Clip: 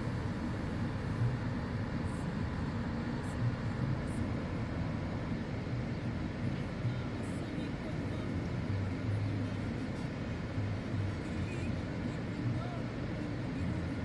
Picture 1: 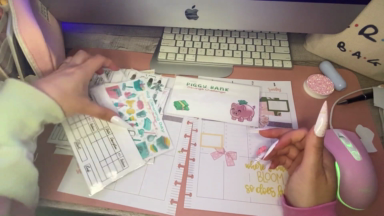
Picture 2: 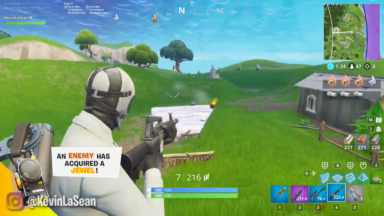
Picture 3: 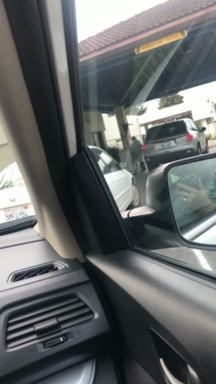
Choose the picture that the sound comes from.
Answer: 3